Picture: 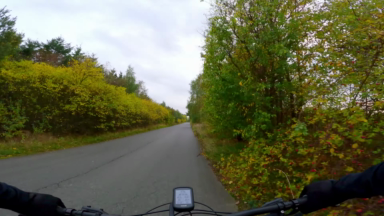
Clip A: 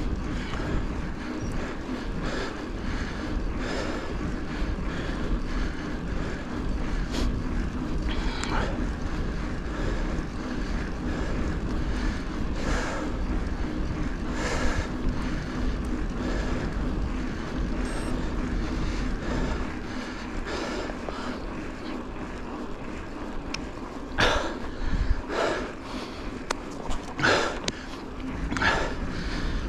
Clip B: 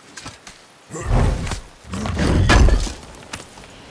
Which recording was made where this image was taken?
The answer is A